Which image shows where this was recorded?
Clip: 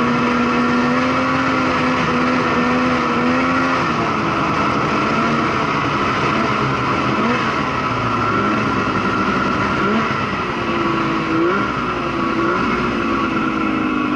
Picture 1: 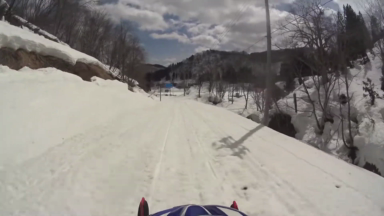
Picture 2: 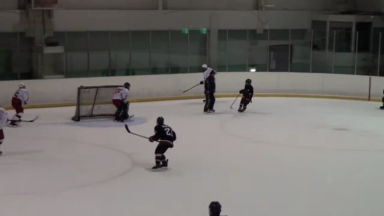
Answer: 1